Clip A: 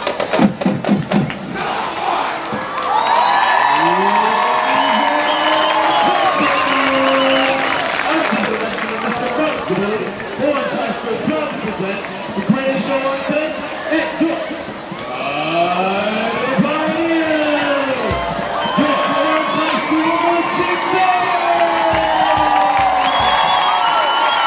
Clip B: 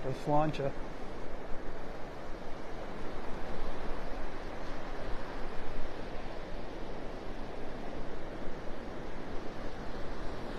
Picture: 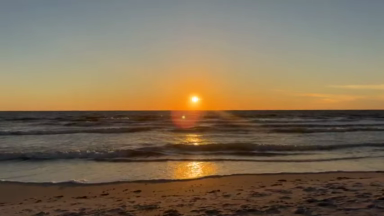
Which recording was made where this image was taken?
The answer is B